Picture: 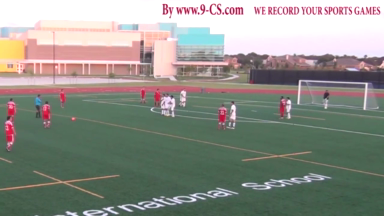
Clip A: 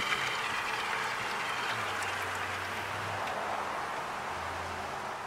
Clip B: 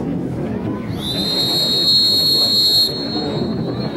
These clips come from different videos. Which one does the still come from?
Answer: B